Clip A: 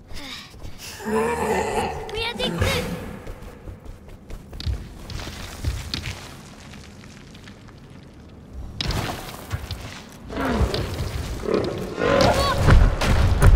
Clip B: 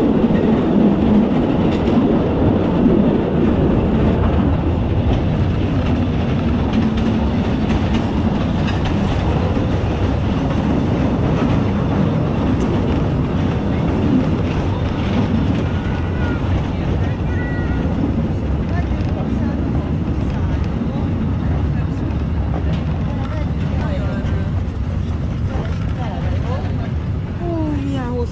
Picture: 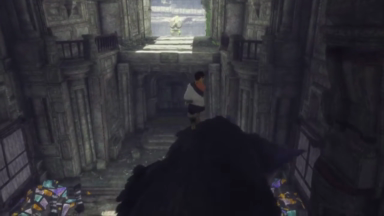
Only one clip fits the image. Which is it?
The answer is A